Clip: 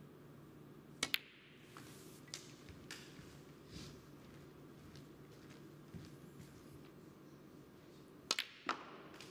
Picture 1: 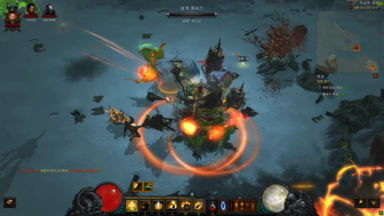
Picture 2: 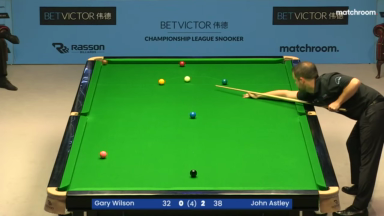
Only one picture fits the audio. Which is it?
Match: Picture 2